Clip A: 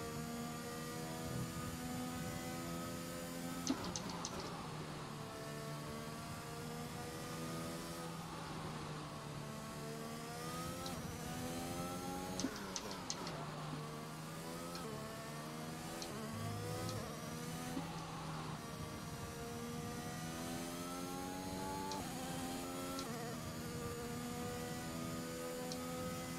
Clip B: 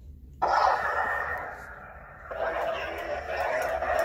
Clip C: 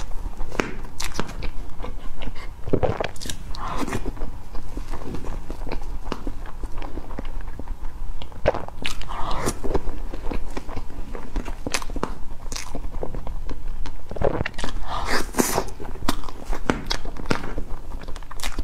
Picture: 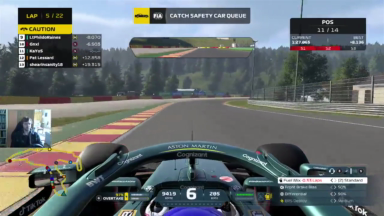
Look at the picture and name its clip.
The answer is A